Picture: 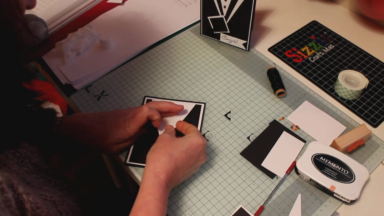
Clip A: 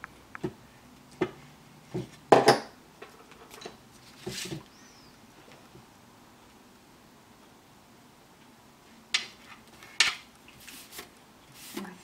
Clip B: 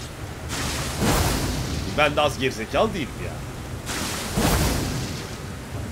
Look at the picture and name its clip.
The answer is A